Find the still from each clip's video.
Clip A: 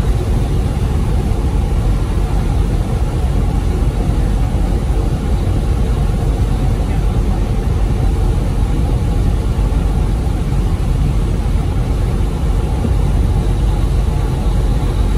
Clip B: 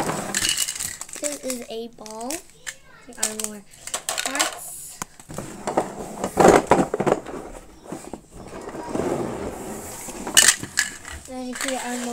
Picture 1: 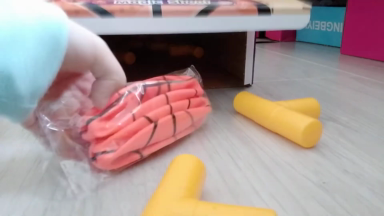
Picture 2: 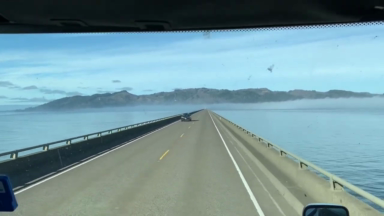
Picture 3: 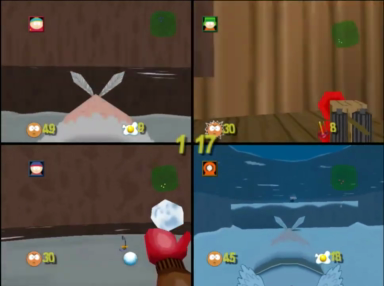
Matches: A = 2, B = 1